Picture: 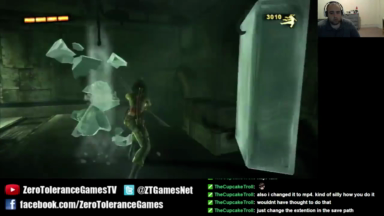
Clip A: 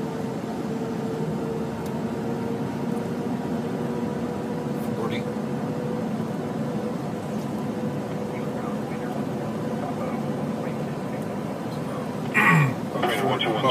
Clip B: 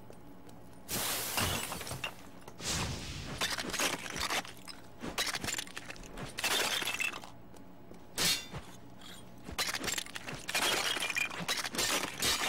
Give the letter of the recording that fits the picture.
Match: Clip B